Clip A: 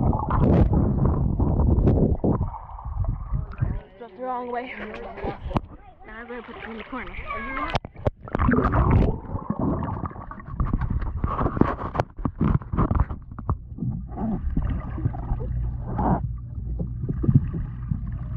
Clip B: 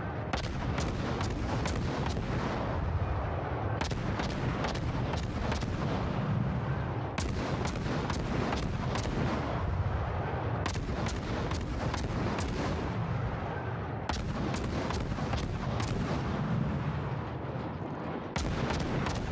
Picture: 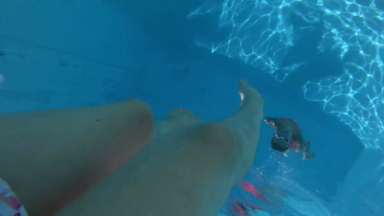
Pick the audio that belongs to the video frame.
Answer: A